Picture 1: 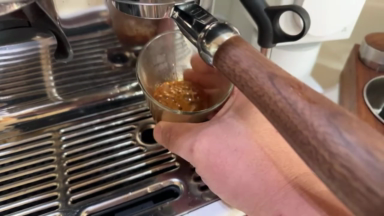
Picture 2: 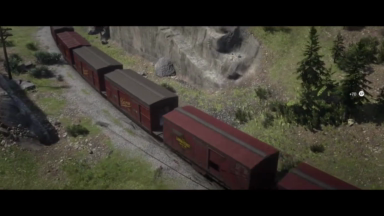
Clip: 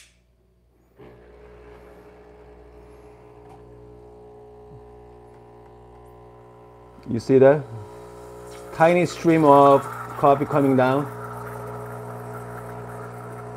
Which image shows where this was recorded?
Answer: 1